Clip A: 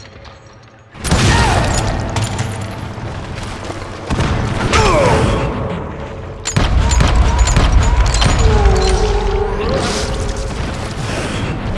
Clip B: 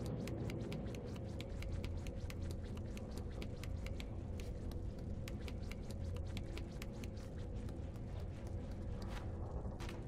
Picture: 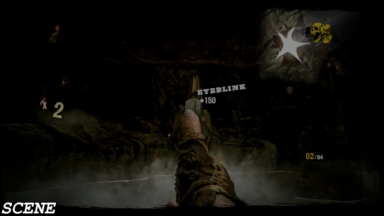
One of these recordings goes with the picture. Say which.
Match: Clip A